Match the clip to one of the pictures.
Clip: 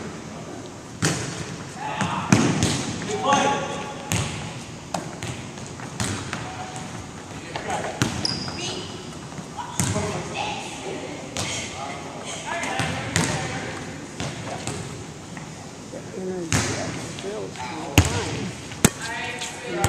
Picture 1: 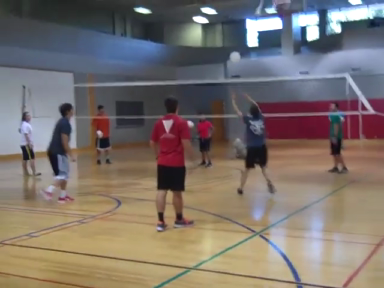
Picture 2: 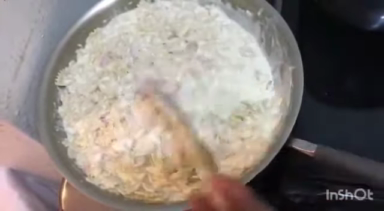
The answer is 1